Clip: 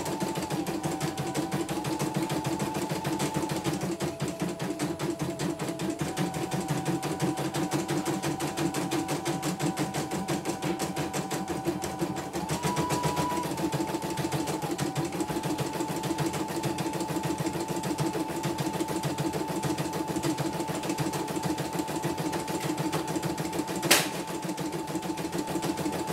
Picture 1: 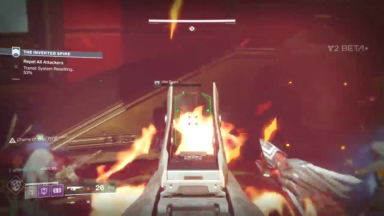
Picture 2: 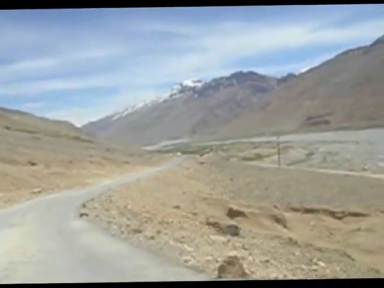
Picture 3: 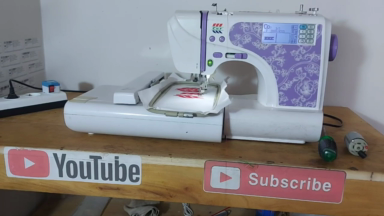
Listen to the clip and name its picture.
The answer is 3